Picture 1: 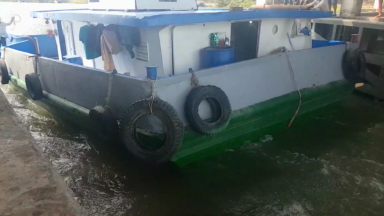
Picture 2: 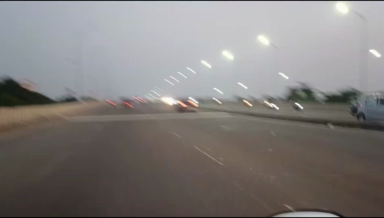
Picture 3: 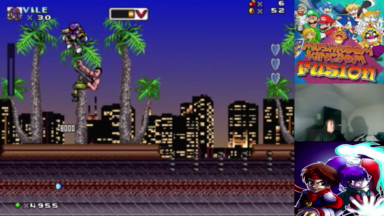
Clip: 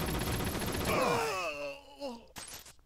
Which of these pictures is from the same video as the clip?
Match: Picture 3